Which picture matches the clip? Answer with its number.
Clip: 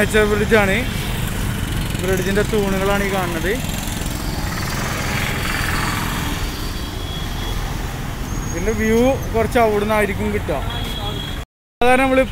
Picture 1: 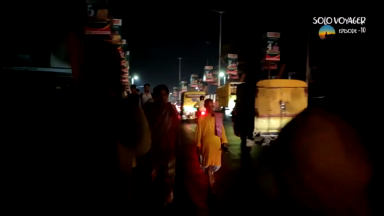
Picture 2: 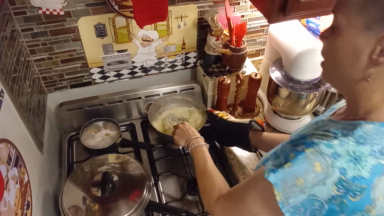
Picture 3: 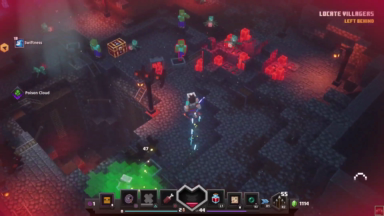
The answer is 1